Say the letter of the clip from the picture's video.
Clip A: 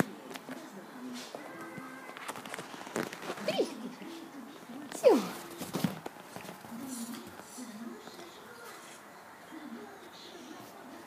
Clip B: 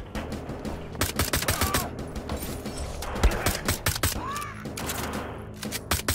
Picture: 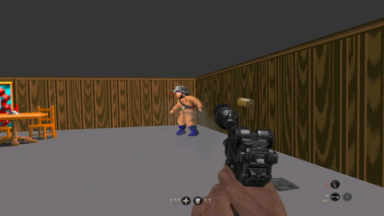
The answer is B